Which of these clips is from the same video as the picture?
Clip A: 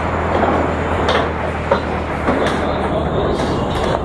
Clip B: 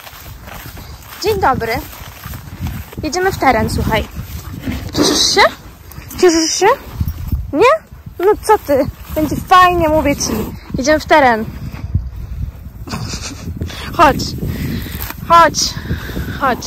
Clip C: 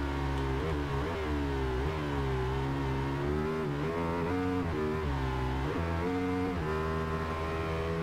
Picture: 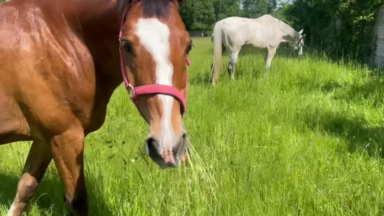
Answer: B